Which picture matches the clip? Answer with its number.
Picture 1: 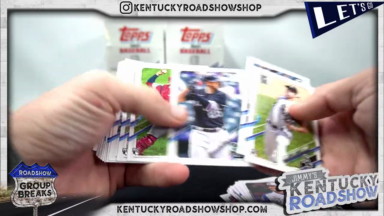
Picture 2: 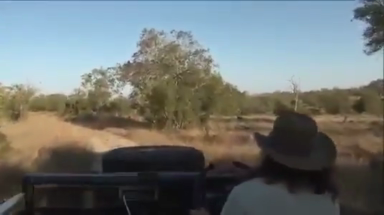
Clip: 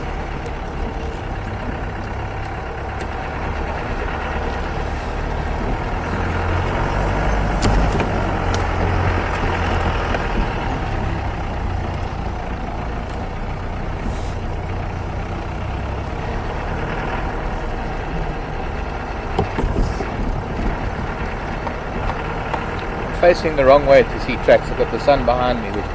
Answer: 2